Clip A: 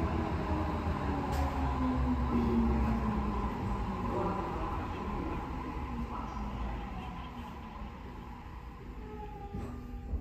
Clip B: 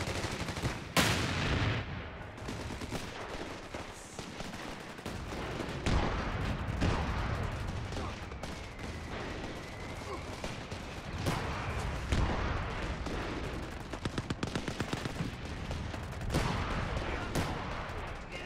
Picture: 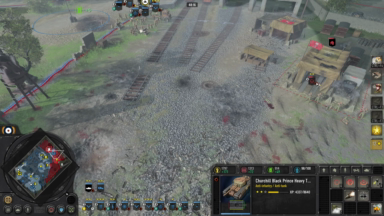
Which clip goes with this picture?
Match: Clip B